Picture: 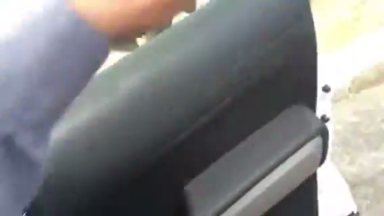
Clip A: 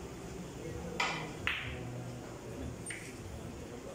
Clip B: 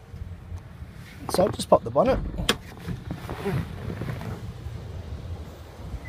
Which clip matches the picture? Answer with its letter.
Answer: B